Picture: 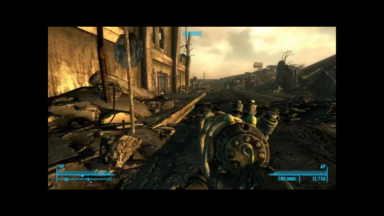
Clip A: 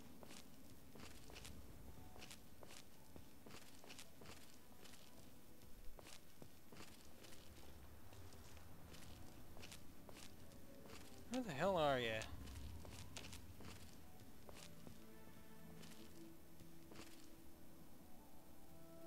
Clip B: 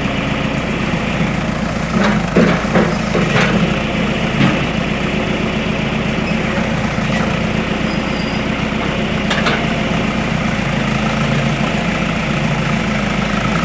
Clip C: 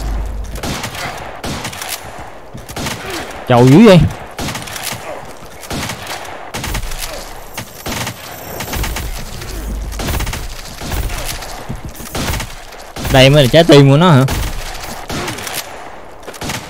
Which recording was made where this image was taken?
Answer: A